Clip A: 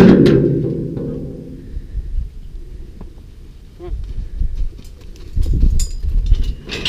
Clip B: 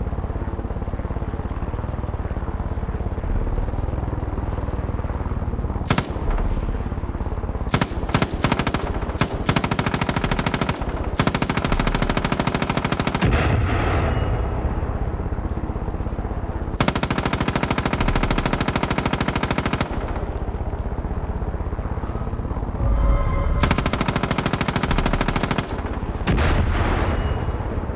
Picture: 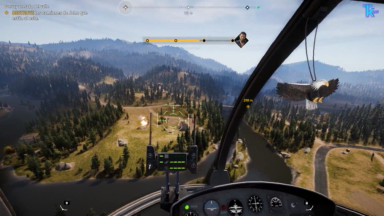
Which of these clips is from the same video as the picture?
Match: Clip B